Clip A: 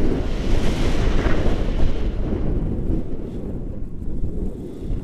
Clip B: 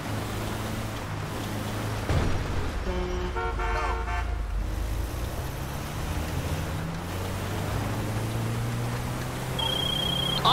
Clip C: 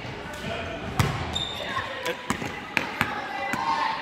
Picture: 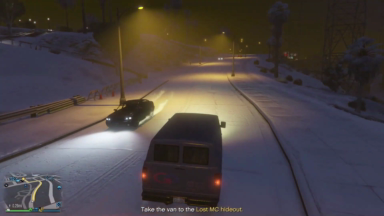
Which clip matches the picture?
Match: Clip B